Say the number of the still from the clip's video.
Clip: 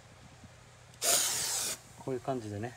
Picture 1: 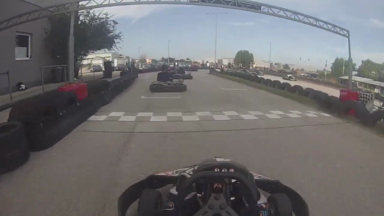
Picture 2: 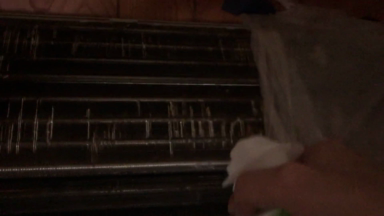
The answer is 2